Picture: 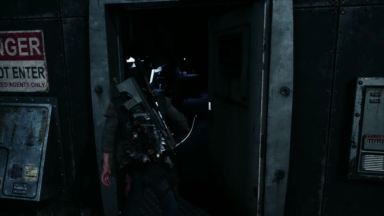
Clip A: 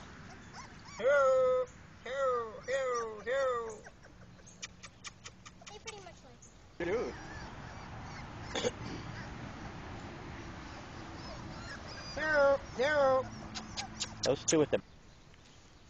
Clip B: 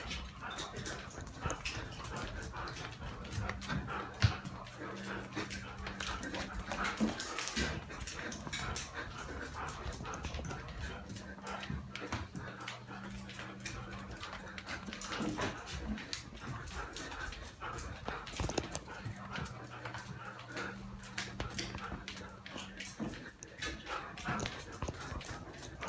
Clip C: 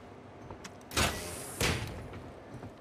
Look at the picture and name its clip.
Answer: C